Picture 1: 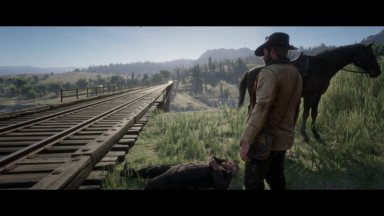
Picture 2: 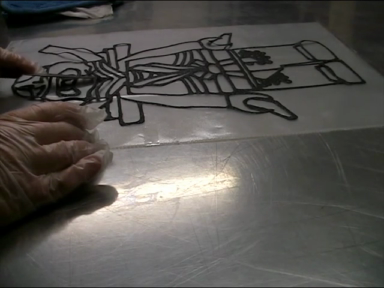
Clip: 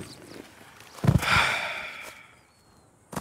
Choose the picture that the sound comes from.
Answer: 1